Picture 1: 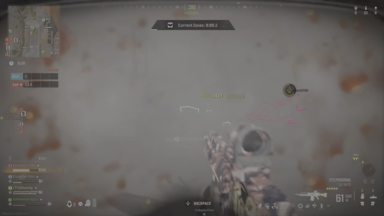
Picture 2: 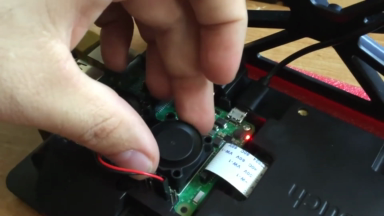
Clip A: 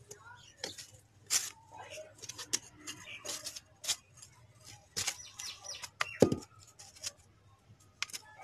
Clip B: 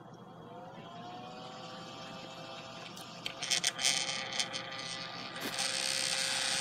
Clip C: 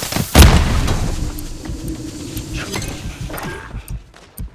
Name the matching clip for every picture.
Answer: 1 C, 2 B